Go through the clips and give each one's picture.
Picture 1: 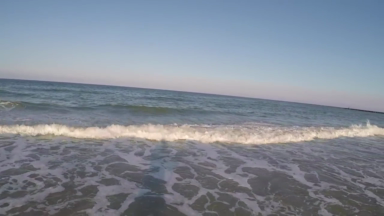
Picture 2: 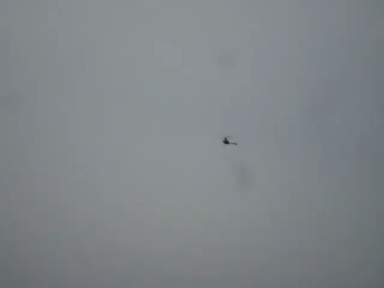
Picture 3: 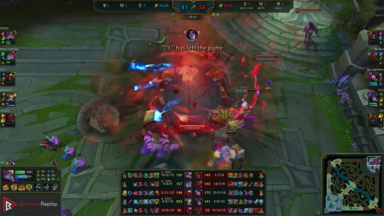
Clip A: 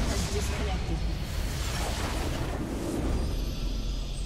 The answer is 3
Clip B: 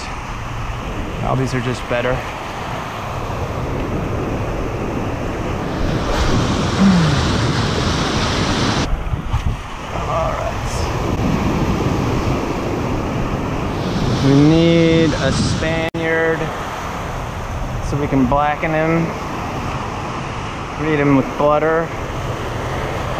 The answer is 1